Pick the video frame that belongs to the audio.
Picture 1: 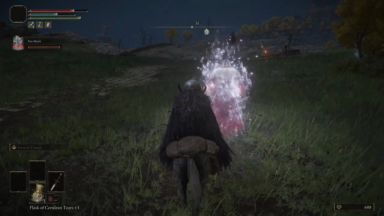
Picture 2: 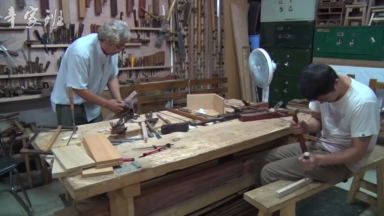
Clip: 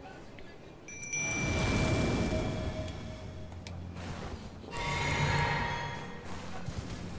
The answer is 1